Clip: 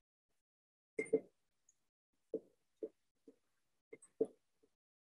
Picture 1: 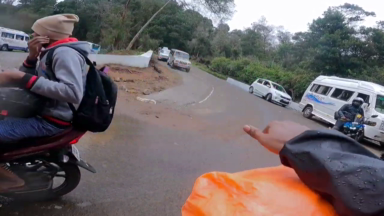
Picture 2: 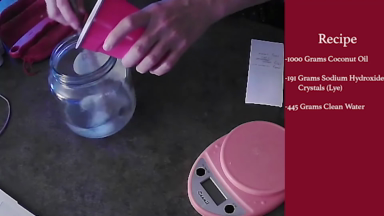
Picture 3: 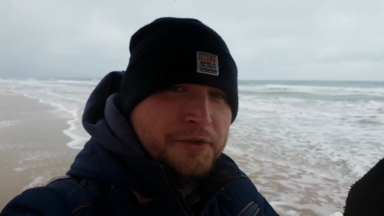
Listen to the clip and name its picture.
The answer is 2